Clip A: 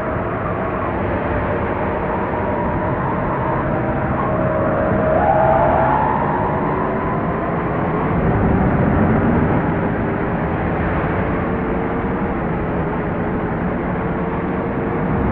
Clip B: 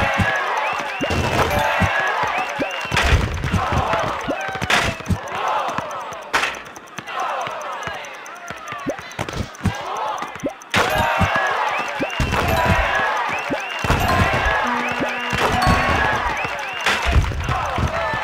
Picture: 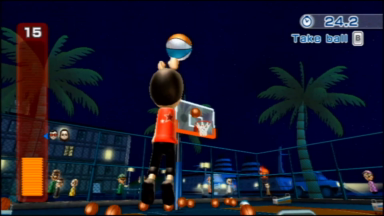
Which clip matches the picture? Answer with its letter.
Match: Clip B